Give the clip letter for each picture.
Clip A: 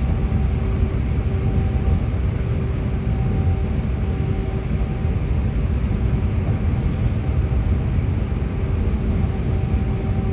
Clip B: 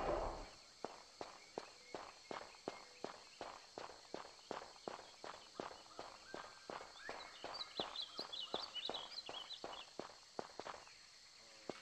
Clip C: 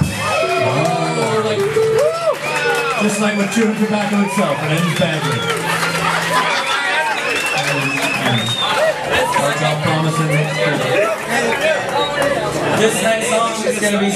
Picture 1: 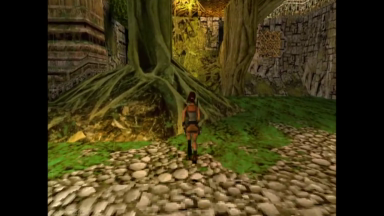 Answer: B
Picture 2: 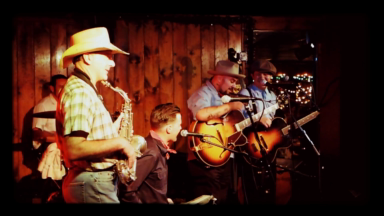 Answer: C